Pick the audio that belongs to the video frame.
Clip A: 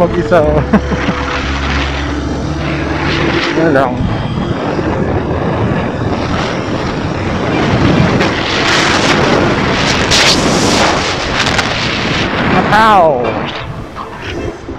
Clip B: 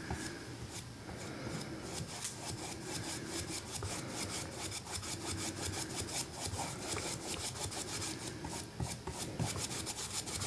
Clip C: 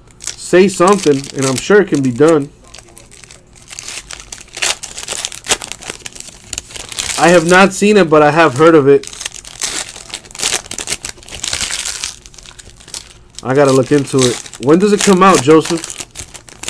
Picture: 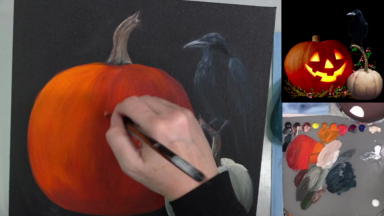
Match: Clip B